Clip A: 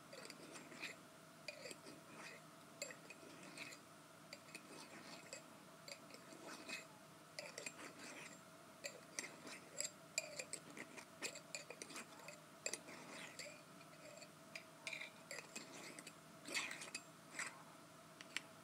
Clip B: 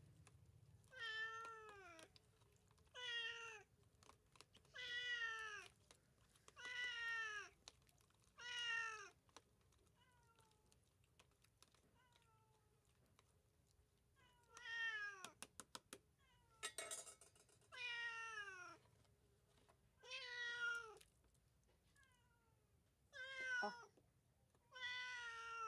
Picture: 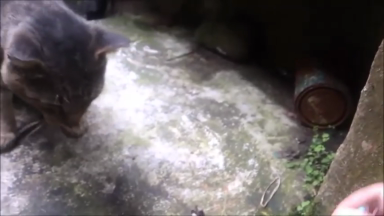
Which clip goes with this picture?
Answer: B